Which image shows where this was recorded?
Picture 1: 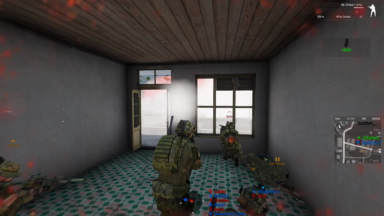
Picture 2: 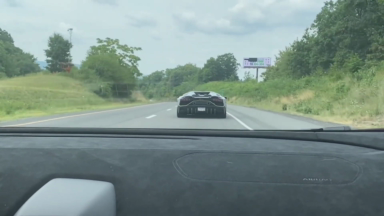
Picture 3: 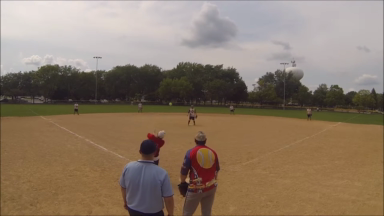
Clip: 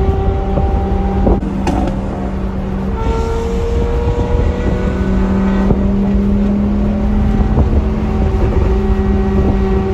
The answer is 2